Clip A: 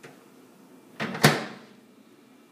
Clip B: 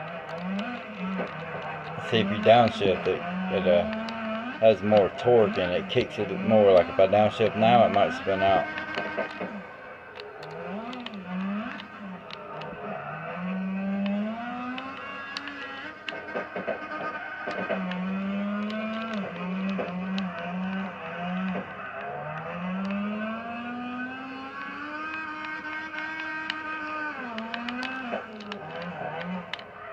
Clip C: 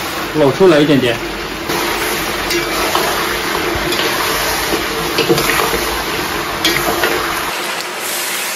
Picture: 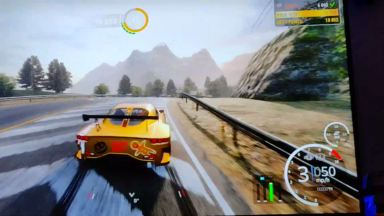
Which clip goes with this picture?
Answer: B